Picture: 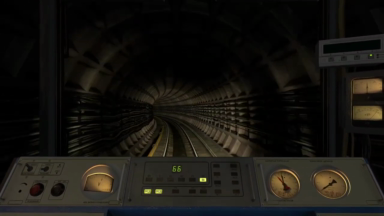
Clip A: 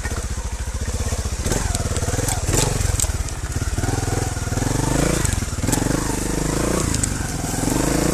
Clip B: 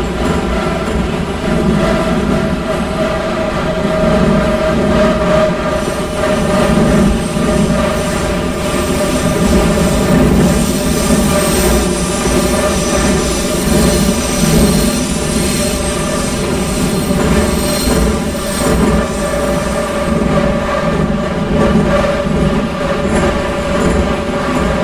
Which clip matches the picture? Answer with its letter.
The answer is B